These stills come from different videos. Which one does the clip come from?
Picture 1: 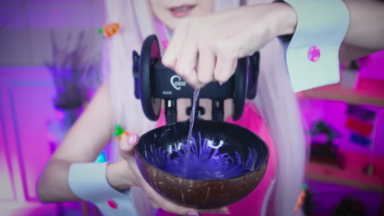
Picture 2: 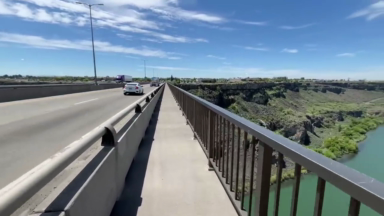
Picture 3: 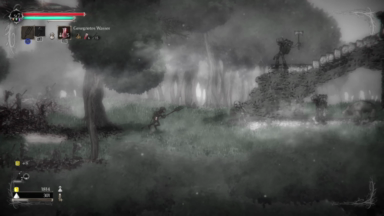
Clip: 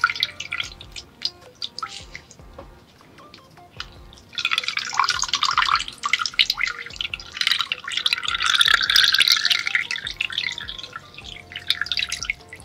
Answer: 1